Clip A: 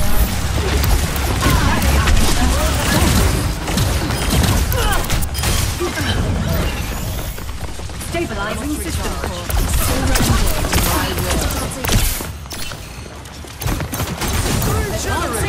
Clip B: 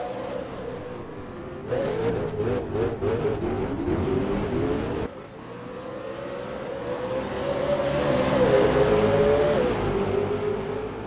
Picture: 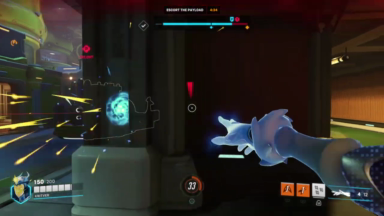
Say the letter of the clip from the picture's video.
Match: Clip A